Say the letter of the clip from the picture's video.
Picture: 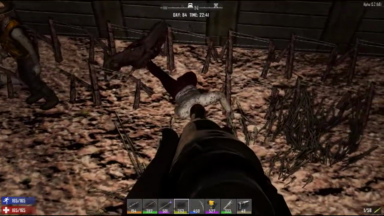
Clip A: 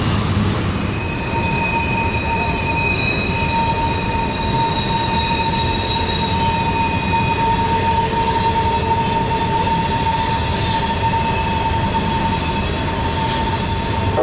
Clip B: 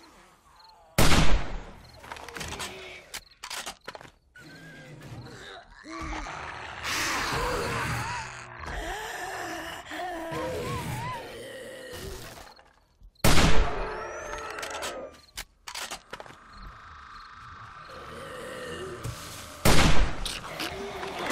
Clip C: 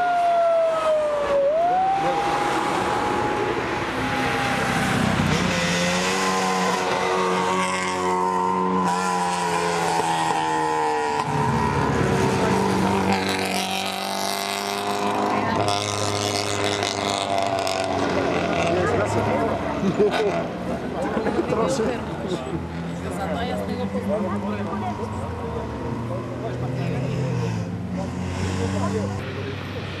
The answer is B